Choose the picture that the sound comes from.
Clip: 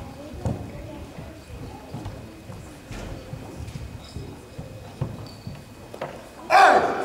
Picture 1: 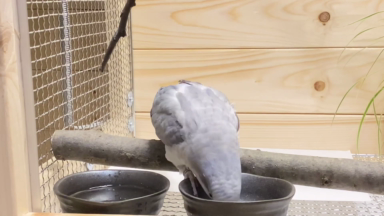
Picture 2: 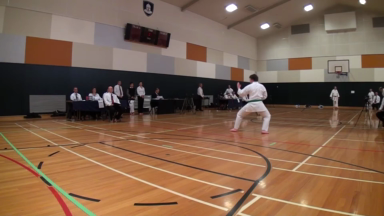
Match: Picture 2